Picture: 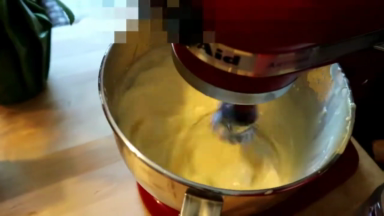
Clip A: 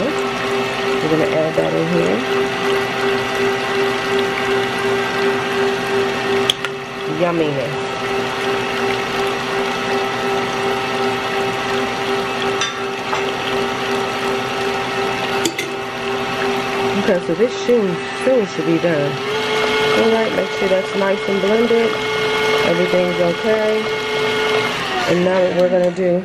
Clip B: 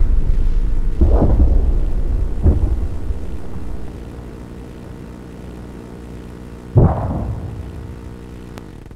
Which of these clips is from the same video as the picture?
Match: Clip A